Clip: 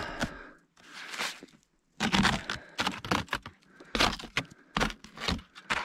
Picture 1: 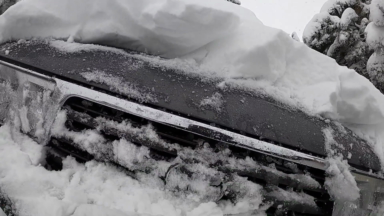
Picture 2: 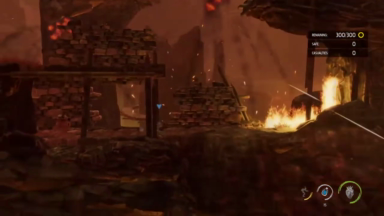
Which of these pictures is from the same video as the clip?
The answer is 1